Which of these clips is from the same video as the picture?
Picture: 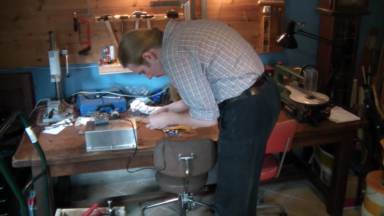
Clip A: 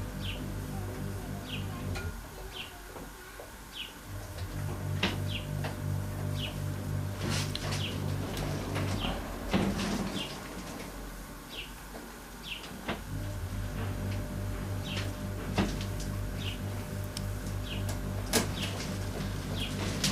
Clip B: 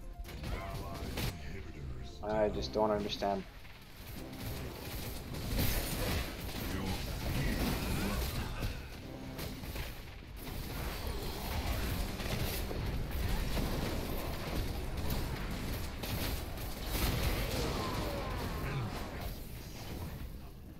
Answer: A